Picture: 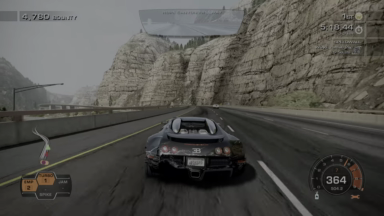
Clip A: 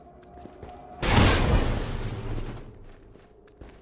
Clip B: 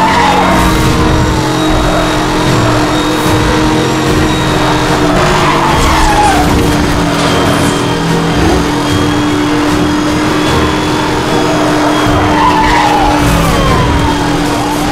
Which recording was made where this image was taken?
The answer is B